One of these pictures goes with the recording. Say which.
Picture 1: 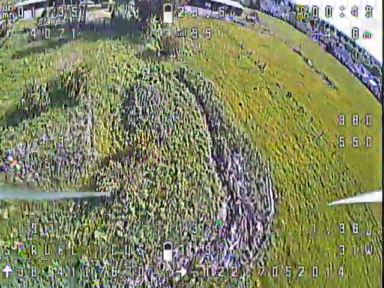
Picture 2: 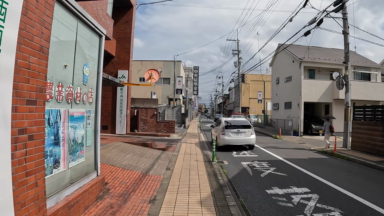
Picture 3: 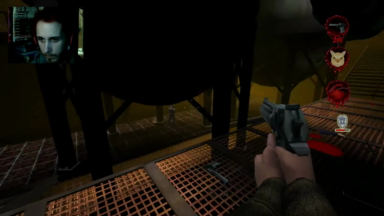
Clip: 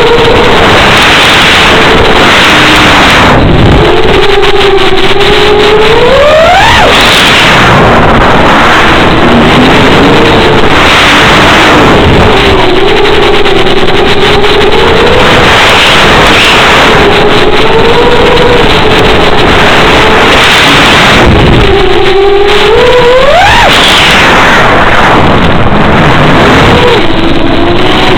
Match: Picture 1